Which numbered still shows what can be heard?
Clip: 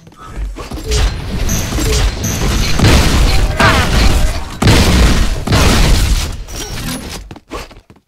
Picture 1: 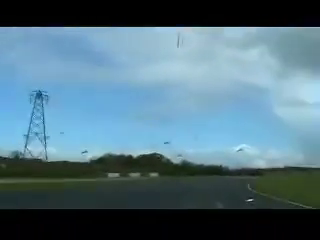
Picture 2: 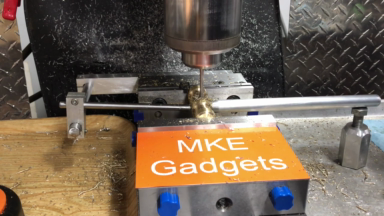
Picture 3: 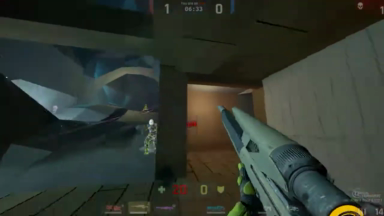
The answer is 3